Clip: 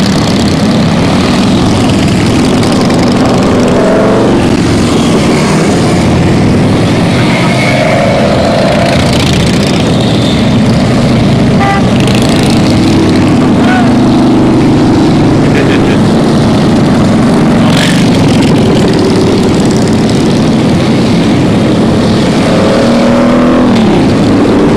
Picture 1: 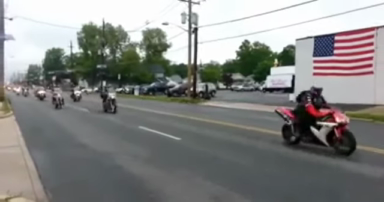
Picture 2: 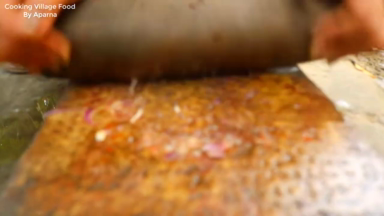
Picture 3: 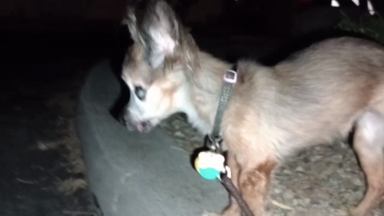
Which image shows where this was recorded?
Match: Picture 1